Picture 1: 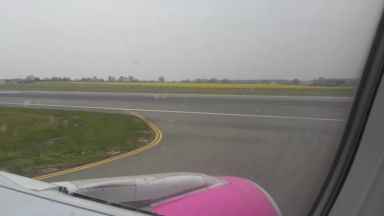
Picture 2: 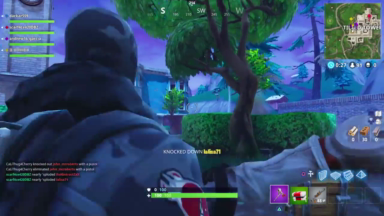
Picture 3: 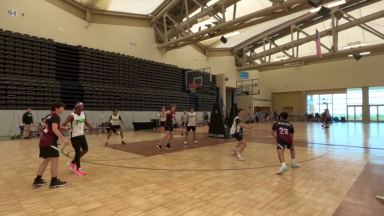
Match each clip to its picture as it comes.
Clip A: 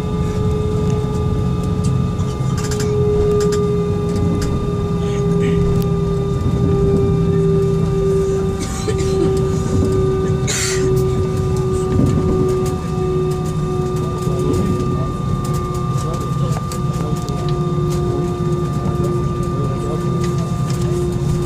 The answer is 1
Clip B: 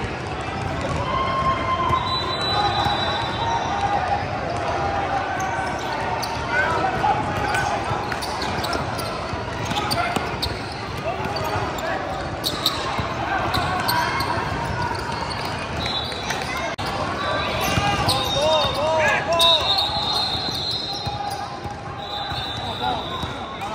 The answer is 3